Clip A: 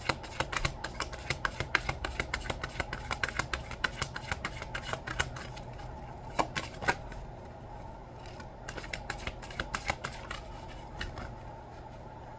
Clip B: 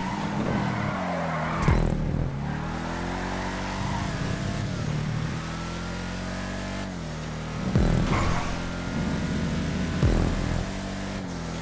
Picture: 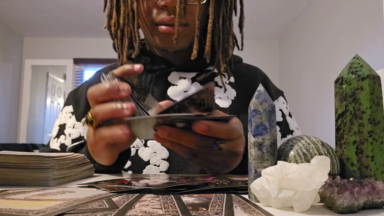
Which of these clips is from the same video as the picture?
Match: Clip A